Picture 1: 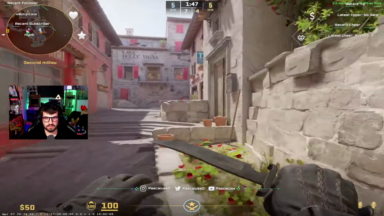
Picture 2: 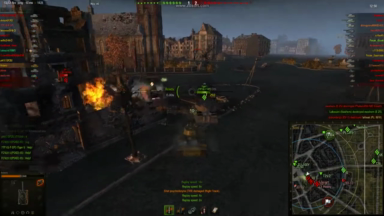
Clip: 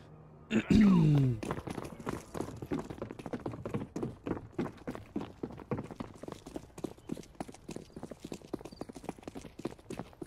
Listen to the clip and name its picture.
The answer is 1